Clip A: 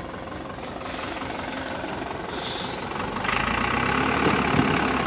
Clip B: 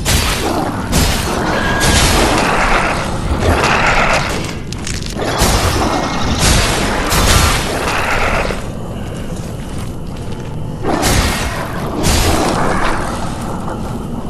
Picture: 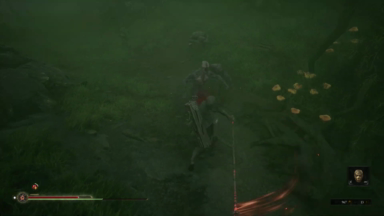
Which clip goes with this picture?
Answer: B